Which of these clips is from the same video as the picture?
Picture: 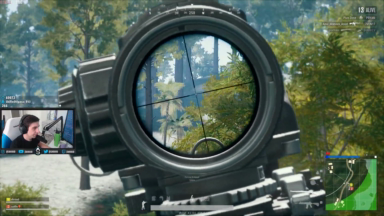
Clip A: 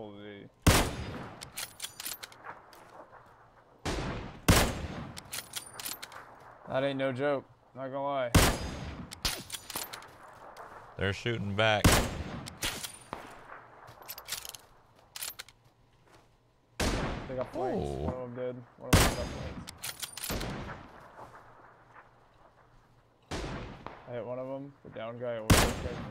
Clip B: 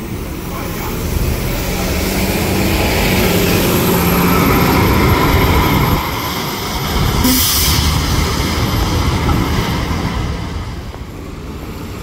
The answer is A